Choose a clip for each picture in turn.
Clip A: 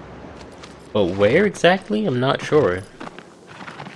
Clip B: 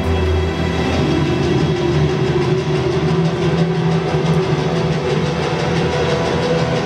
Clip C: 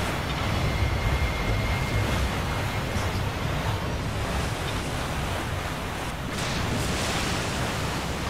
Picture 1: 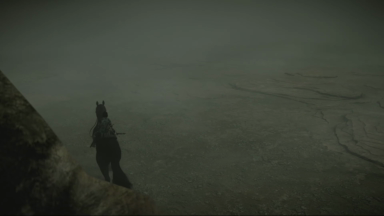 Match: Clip A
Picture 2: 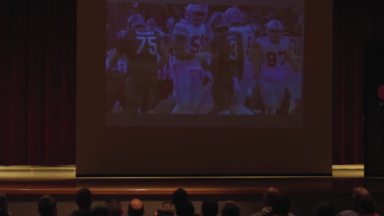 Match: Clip B